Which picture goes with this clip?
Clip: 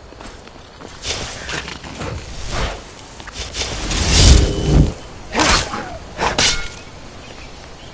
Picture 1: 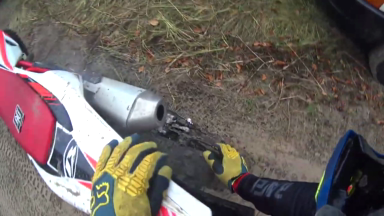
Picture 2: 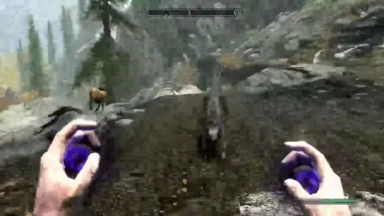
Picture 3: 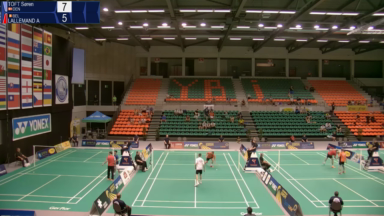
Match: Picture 2